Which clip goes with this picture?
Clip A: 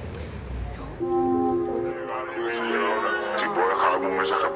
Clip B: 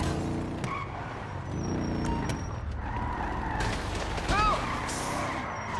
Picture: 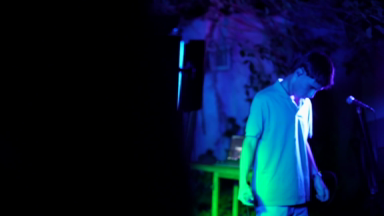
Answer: A